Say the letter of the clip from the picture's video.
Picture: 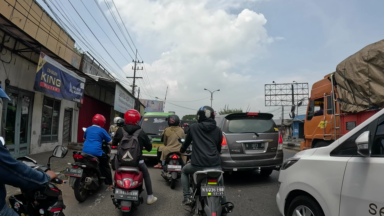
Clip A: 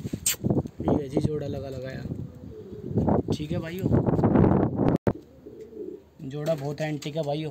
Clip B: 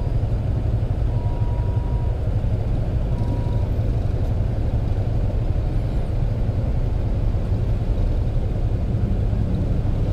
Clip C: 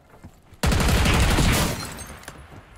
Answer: B